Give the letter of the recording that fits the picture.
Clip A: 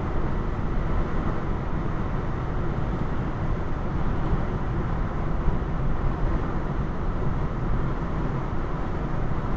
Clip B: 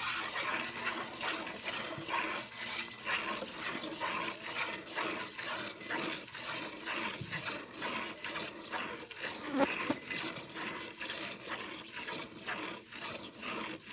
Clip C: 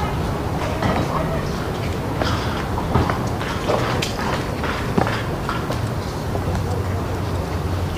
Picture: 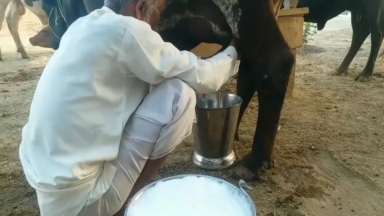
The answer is B